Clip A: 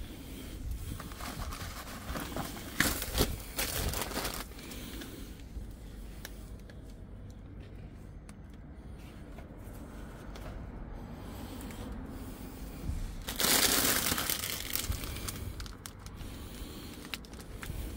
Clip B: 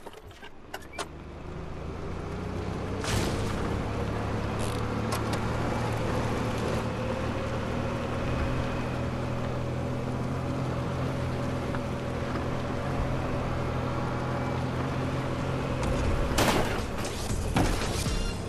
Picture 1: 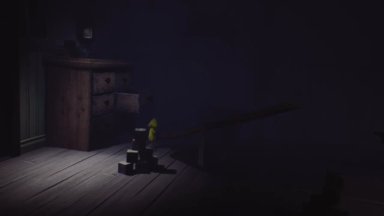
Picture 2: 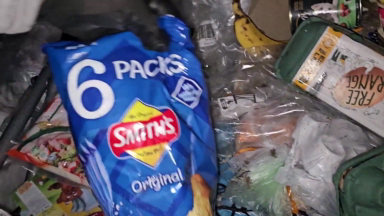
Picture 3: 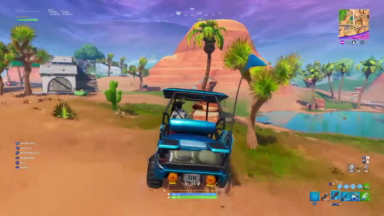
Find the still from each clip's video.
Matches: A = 2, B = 3